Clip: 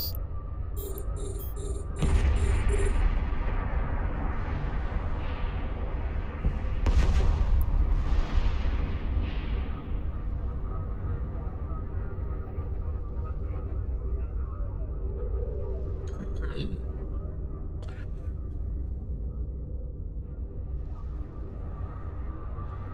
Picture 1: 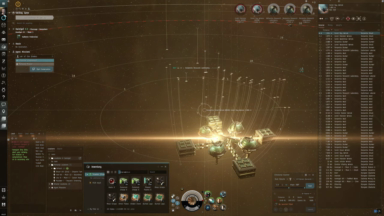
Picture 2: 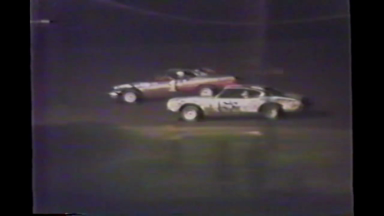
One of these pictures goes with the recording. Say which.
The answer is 1